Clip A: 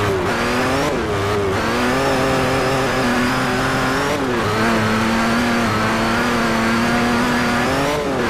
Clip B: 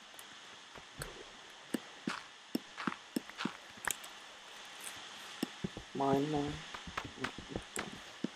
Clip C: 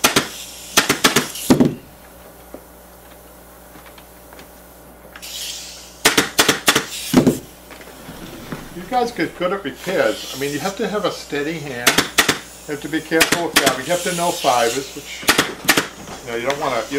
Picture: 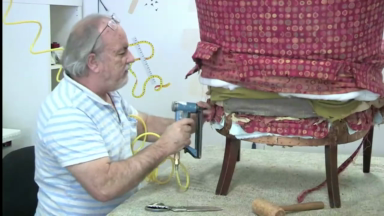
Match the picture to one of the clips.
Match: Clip C